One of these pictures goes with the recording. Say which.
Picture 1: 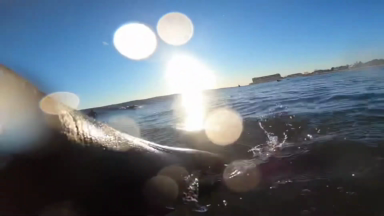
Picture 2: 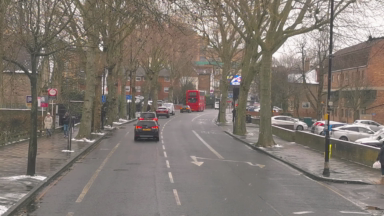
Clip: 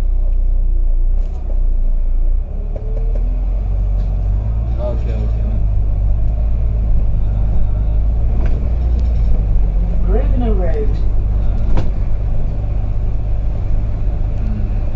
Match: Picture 2